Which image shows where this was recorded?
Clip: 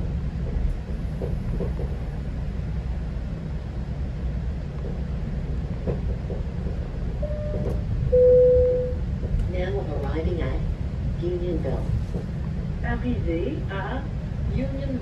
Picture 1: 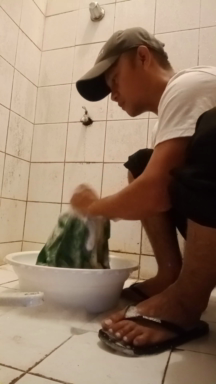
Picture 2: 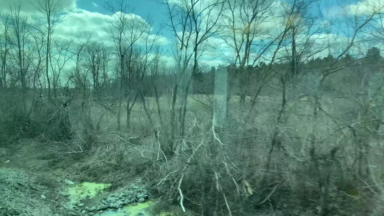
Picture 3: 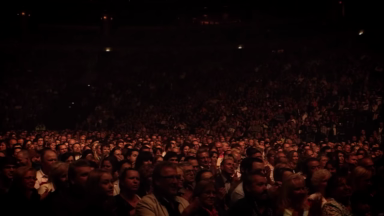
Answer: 2